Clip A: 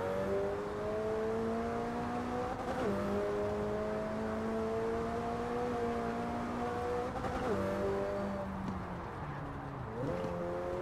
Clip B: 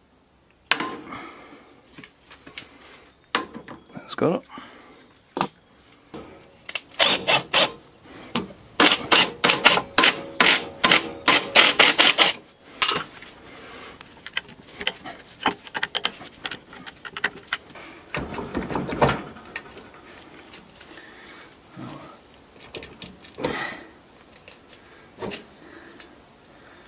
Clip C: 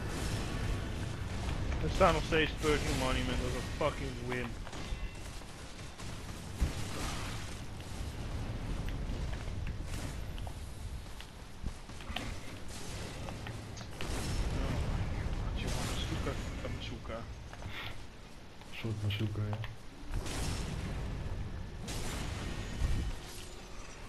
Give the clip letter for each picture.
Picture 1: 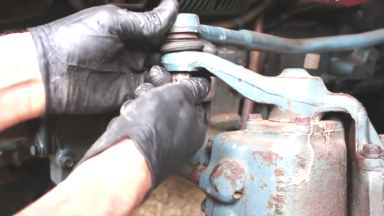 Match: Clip B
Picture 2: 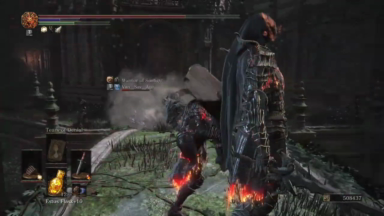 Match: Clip C